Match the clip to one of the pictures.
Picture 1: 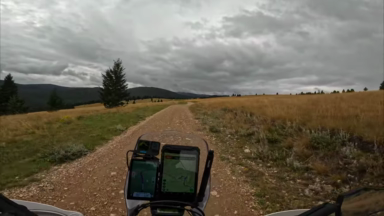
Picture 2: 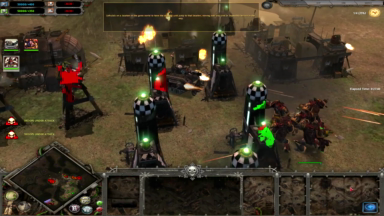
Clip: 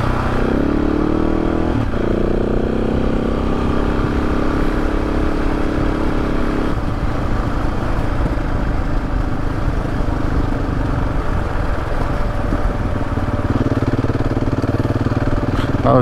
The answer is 1